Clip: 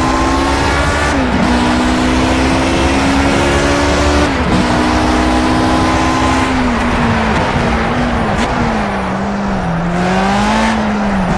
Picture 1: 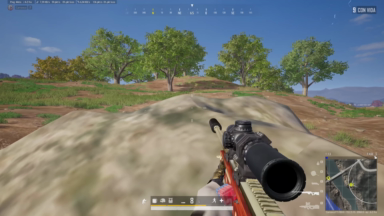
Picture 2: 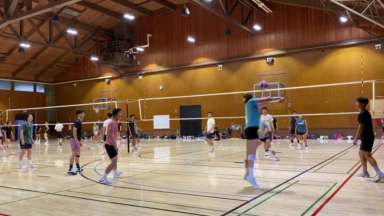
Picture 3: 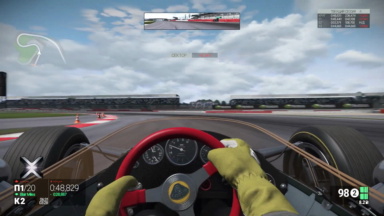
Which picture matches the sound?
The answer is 3